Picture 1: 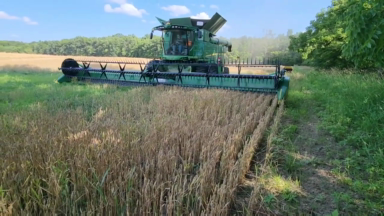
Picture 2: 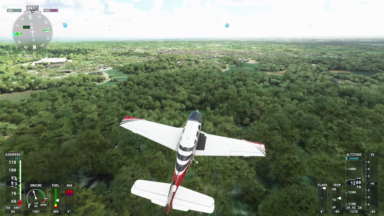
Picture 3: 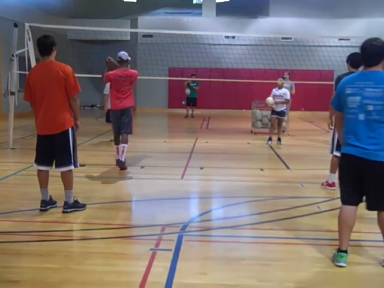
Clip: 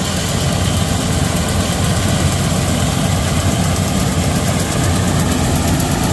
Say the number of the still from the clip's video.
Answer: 1